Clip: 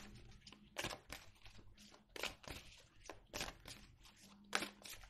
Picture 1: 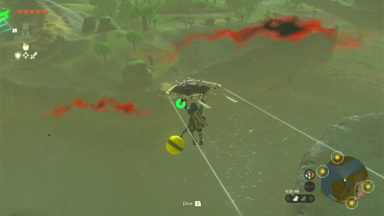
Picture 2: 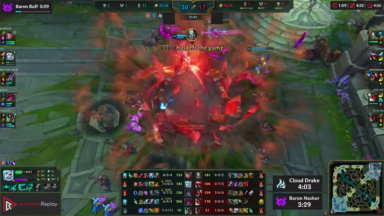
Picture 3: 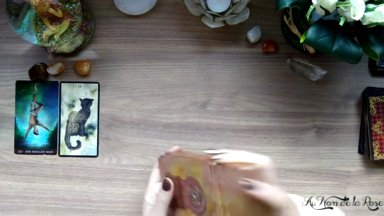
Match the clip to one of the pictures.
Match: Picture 3